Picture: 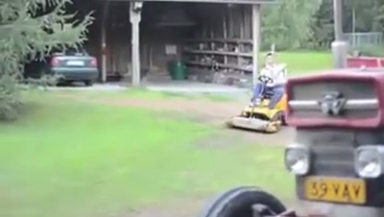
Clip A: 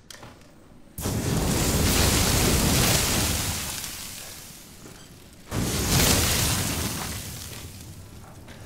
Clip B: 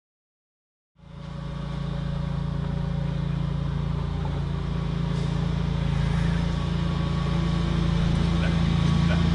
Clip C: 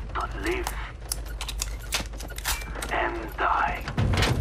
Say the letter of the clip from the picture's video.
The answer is B